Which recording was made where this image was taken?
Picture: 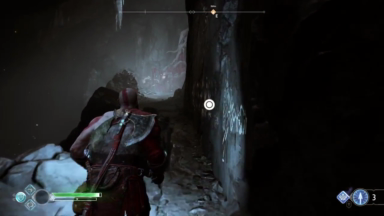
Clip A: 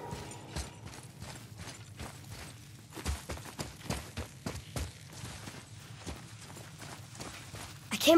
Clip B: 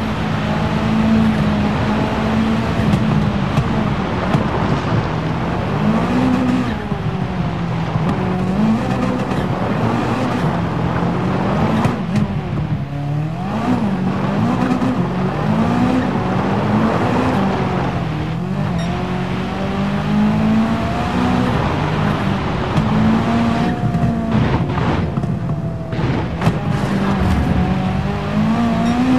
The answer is A